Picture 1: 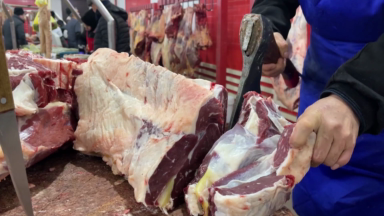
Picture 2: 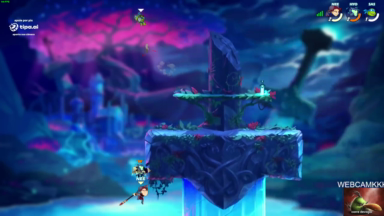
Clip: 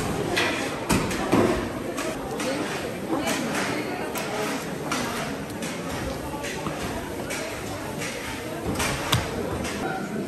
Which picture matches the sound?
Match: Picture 1